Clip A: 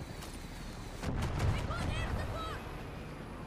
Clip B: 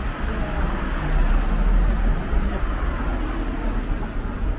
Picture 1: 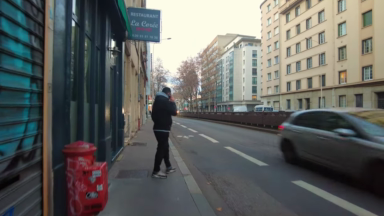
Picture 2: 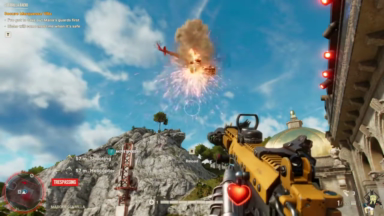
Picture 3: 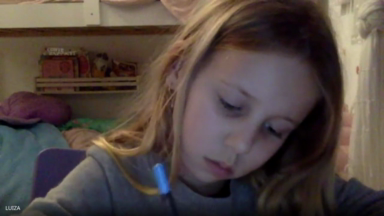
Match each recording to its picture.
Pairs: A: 2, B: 1